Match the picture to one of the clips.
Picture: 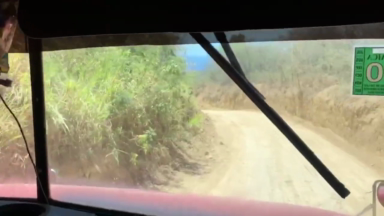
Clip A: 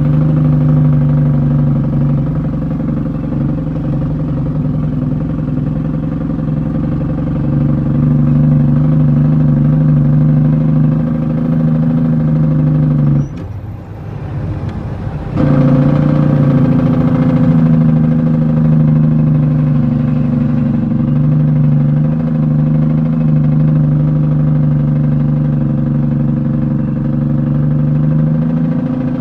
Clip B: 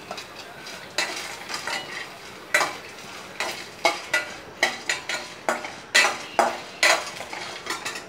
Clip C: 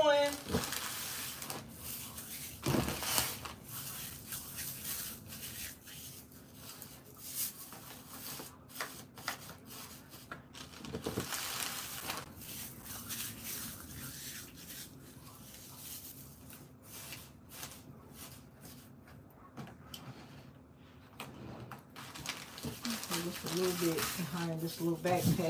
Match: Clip A